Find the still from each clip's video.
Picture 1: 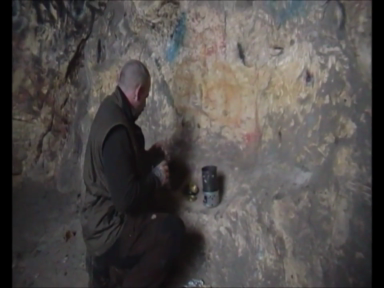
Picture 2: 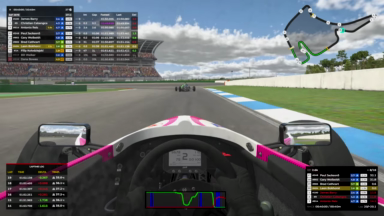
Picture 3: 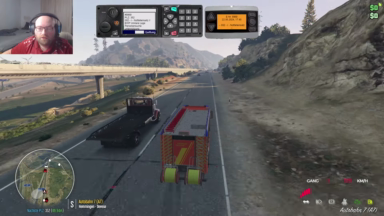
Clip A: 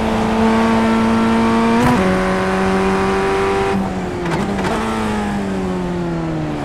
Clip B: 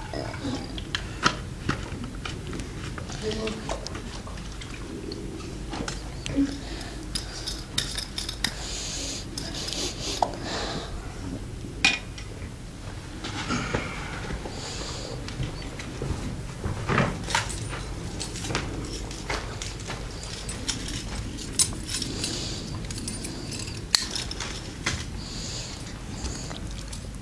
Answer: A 2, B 1